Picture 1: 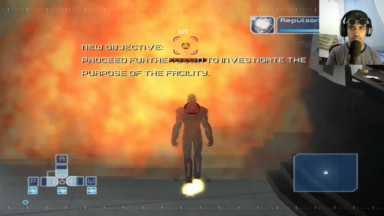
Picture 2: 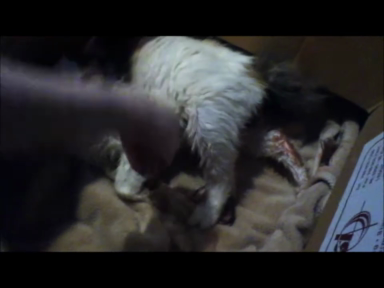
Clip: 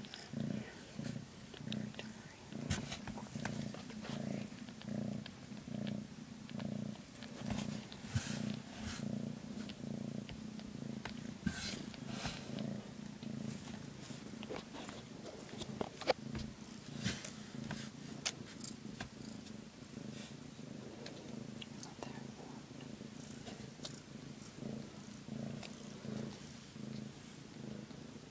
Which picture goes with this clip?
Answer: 2